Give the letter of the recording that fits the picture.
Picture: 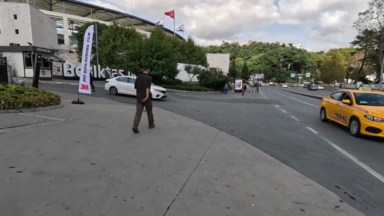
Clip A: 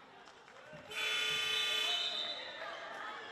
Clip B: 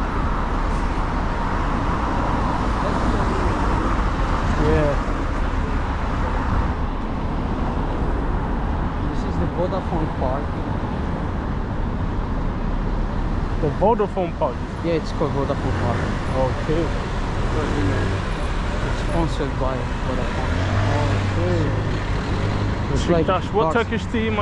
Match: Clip B